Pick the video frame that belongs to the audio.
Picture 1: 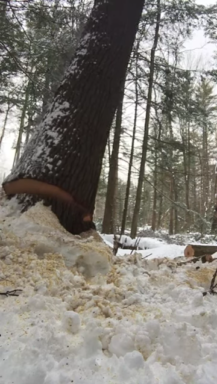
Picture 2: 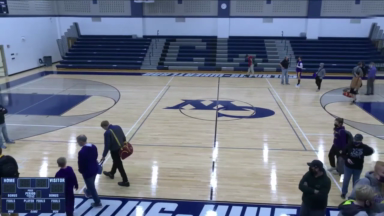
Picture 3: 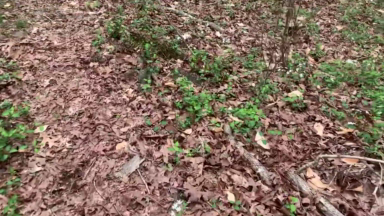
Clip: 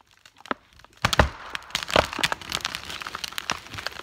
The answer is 1